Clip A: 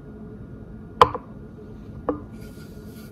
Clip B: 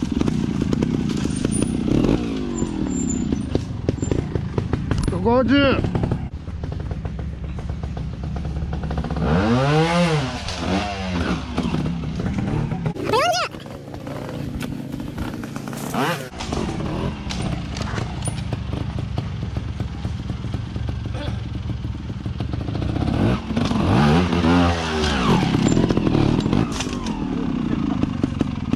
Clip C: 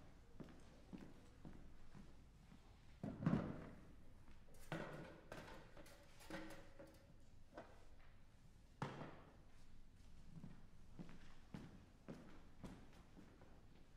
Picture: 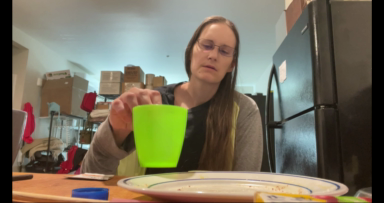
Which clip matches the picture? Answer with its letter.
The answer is A